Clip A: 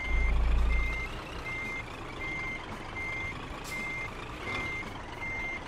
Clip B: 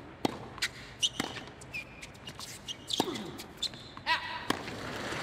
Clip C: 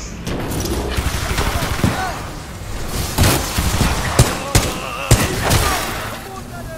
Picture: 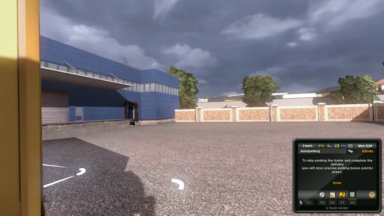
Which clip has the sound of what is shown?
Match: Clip A